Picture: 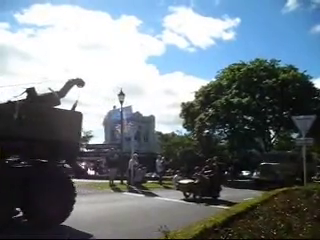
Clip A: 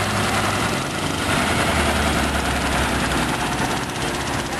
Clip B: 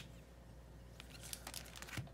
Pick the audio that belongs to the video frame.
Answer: A